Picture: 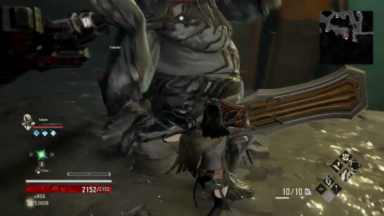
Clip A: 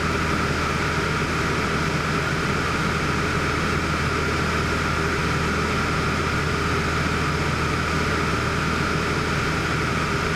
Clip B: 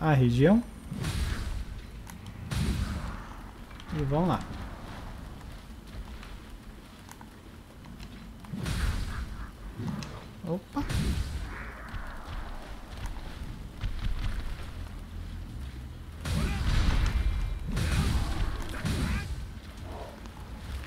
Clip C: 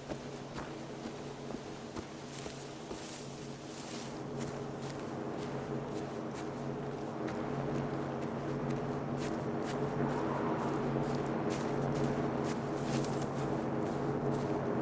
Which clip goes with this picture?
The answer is B